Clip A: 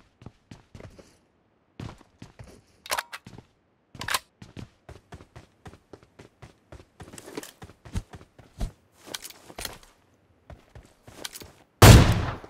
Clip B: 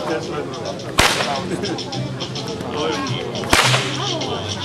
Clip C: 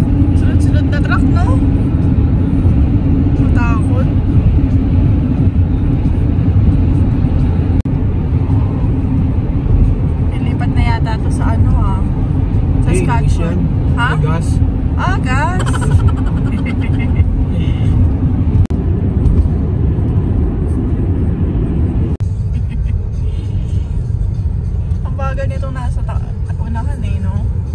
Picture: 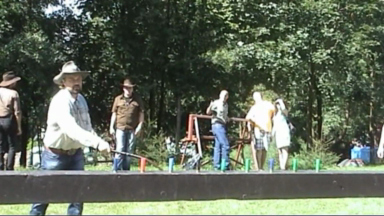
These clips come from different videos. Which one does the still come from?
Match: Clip B